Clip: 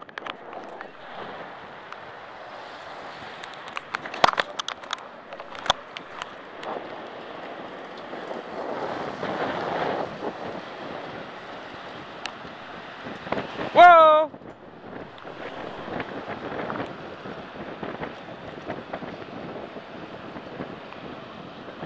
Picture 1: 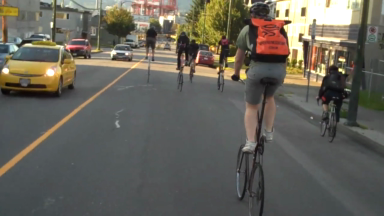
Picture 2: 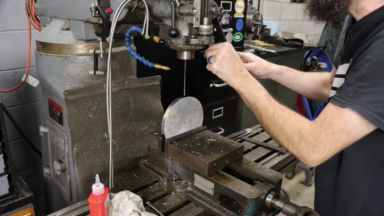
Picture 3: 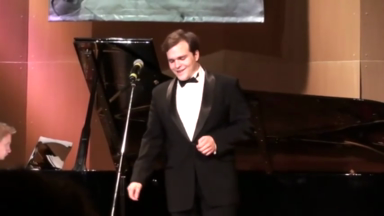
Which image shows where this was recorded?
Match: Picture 1